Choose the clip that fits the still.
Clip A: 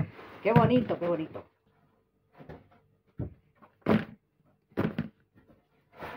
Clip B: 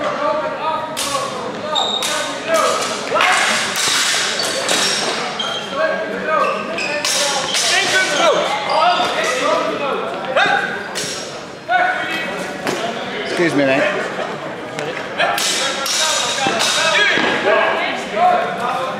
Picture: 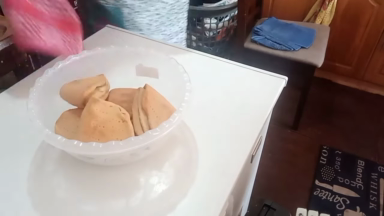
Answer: A